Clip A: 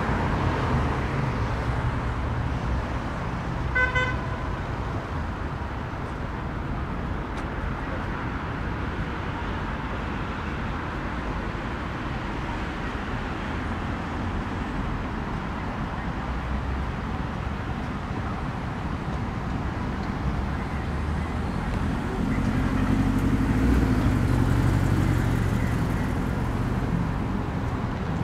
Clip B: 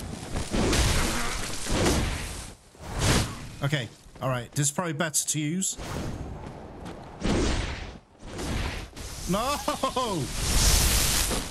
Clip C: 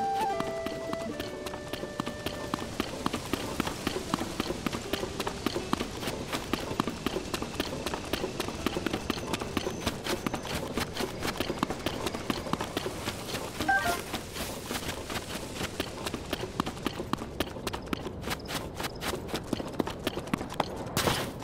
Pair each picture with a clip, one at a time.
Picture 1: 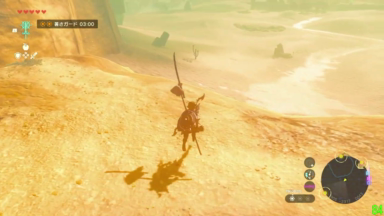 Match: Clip C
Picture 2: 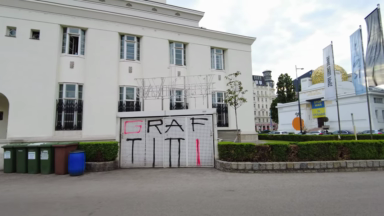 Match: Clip A